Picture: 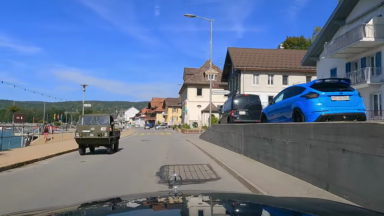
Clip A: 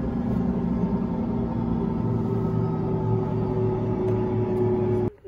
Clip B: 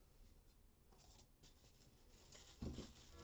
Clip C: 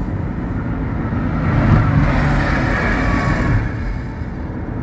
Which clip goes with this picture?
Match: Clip C